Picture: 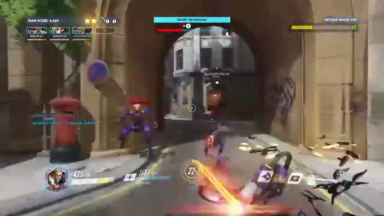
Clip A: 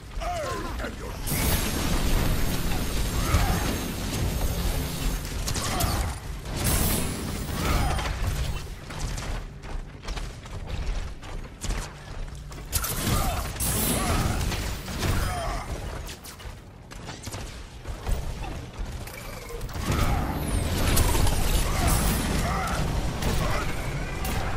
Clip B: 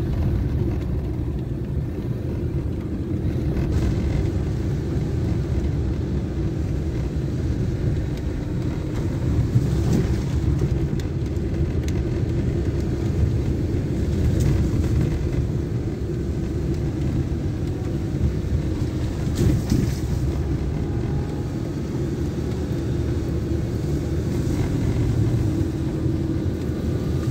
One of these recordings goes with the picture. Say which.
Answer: A